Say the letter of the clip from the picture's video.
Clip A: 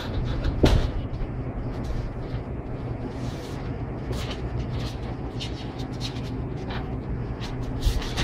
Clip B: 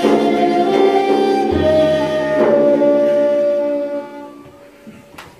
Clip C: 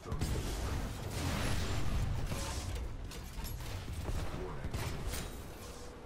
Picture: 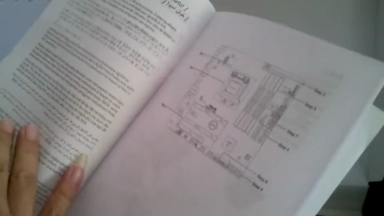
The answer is A